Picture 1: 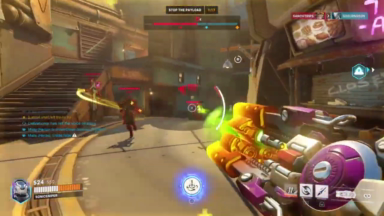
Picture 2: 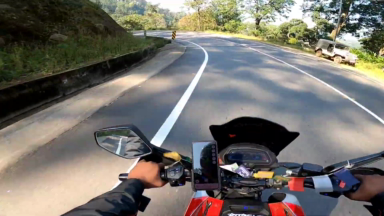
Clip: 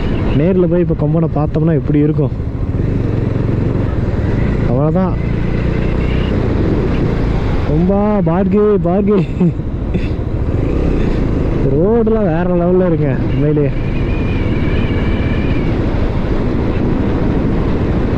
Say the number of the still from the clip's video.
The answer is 2